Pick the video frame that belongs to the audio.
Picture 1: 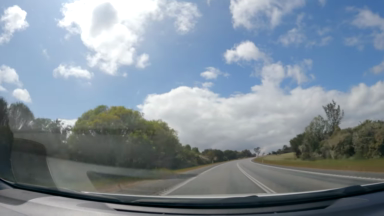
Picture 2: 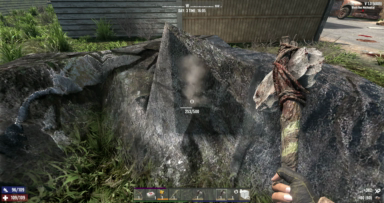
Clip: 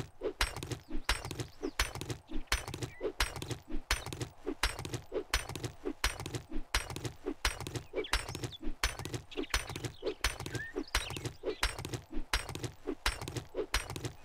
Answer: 2